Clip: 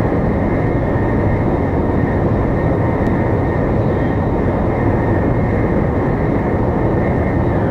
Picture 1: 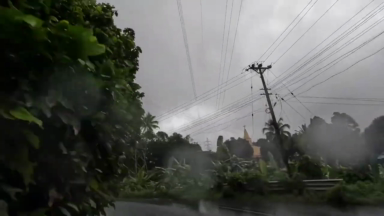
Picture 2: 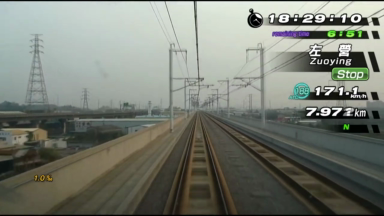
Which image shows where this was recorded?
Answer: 2